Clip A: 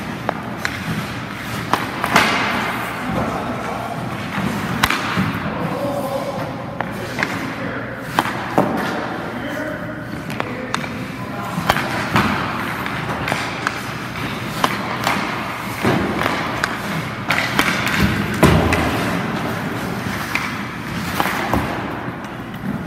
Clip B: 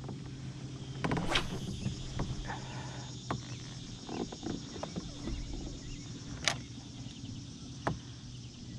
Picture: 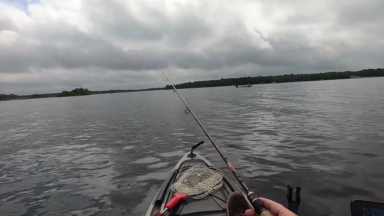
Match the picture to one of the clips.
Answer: B